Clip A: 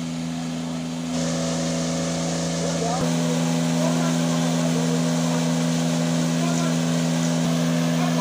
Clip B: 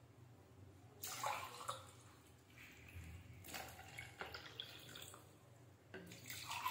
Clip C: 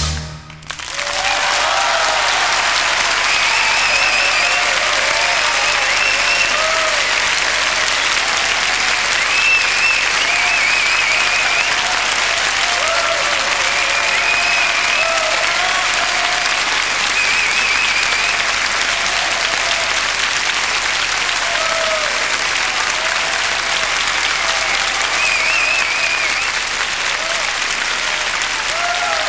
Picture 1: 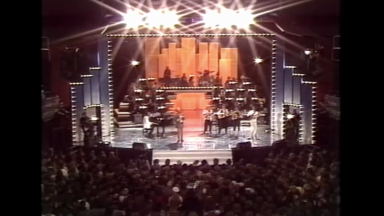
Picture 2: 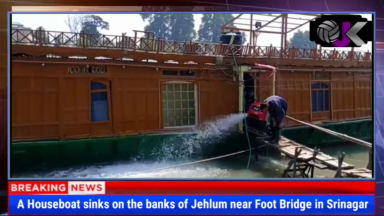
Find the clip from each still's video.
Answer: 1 C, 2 A